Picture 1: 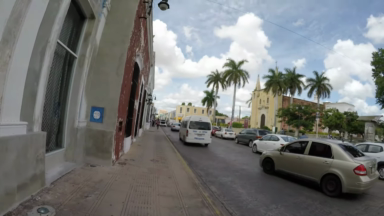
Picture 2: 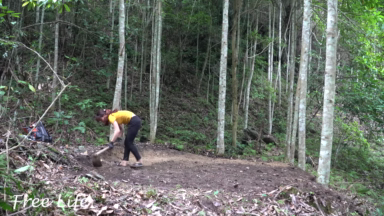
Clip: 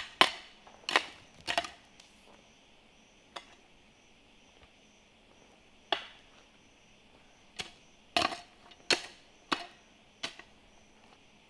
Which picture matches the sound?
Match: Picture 2